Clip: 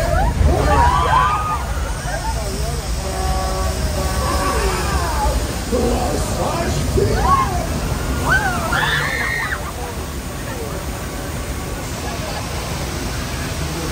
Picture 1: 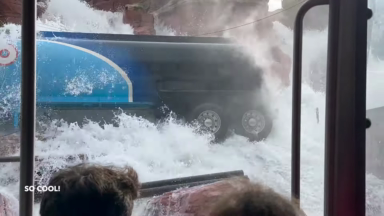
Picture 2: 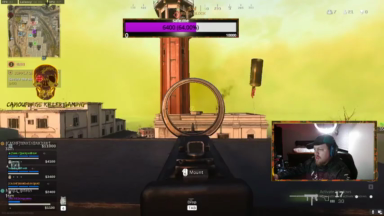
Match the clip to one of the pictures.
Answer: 1